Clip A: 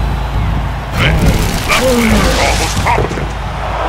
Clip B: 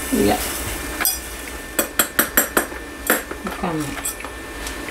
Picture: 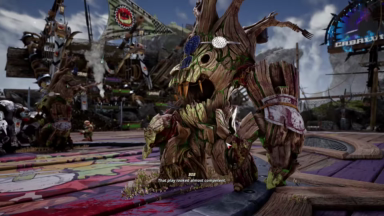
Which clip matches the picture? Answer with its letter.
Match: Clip A